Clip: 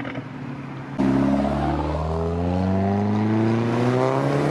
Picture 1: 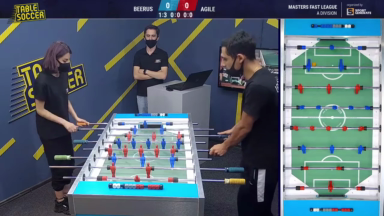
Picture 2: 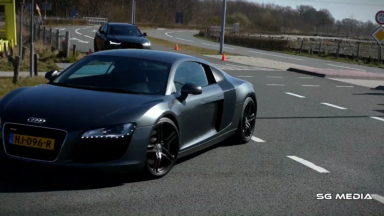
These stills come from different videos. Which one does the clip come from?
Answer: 2